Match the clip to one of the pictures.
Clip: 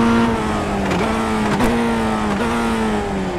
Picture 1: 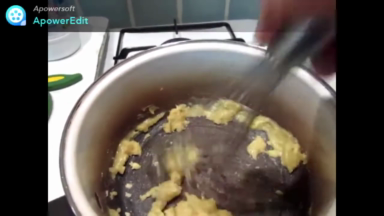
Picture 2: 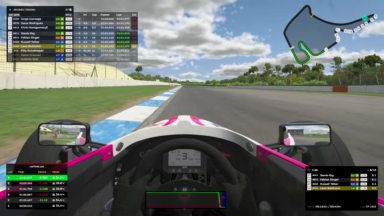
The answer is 2